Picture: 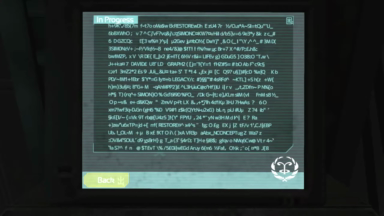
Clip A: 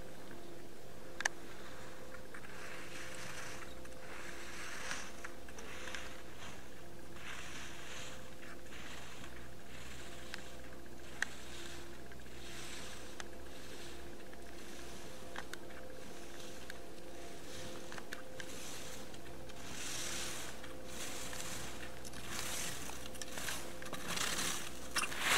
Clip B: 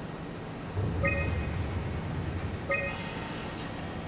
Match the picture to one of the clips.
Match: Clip B